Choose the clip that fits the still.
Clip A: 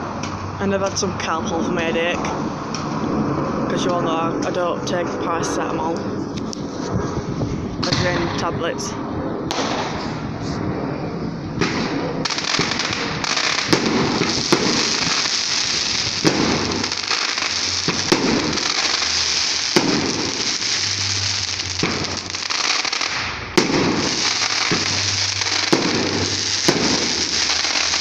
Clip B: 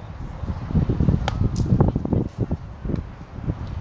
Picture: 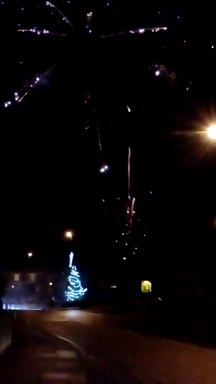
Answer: A